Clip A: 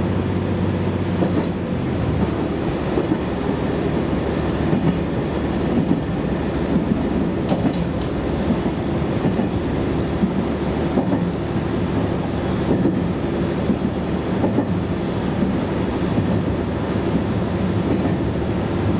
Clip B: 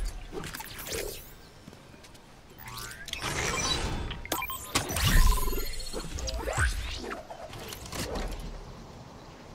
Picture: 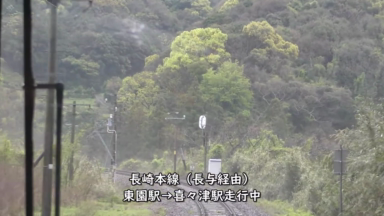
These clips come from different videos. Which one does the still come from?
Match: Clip A